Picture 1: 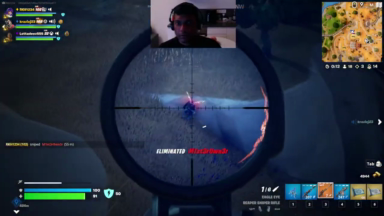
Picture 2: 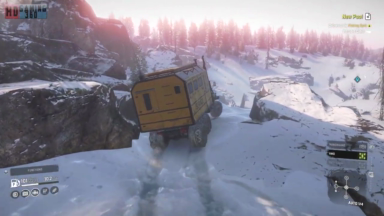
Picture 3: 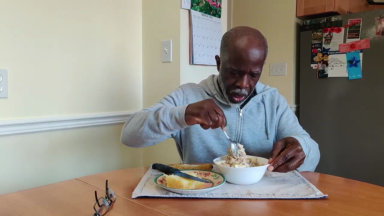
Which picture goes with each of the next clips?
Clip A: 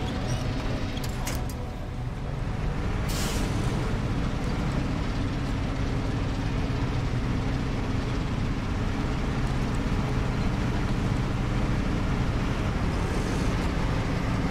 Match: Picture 2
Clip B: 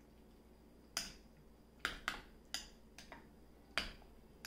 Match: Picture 3